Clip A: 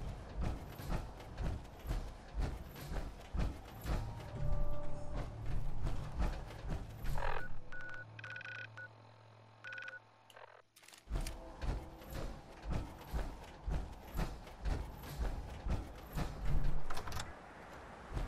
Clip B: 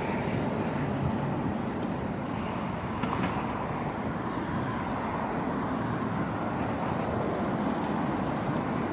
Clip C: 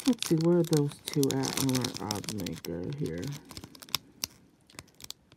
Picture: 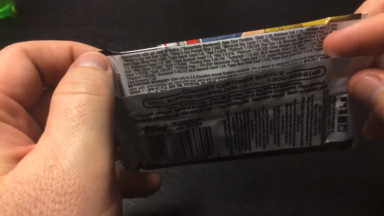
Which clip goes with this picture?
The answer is C